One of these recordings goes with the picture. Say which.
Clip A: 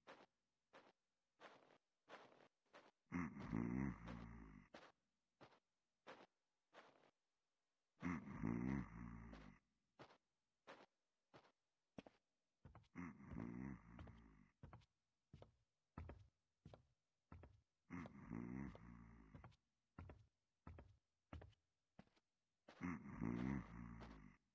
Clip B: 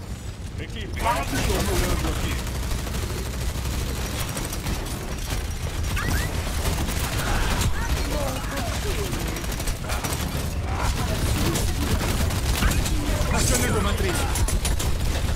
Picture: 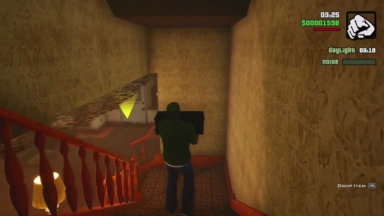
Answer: A